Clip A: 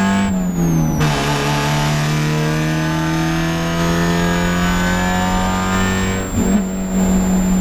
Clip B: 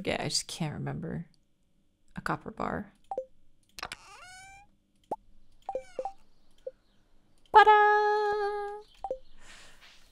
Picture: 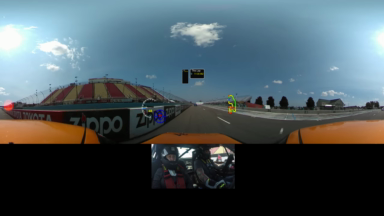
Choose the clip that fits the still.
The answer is A